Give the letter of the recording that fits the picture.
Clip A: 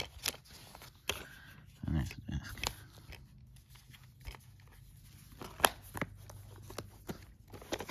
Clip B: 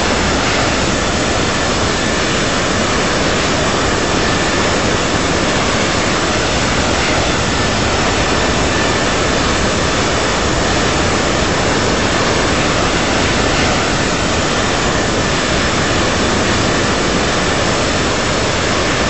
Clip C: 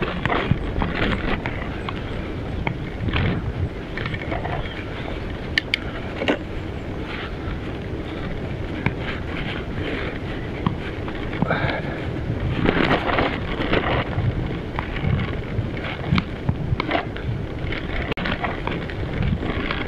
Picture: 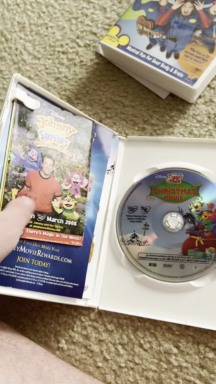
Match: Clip A